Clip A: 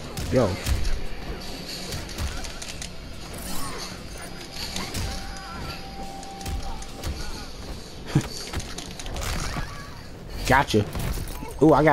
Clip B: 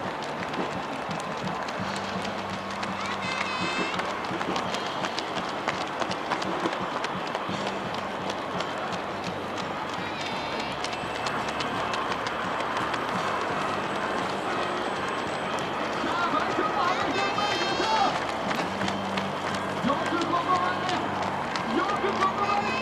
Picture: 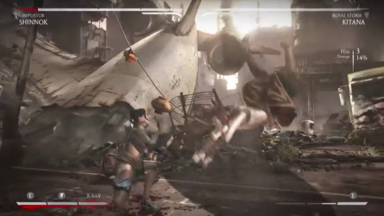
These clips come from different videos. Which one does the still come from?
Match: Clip A